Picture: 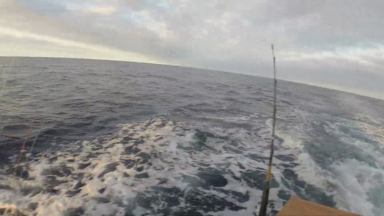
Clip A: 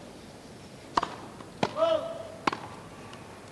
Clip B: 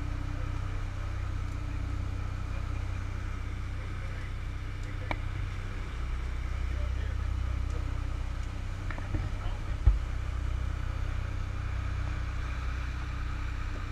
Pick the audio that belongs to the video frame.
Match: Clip B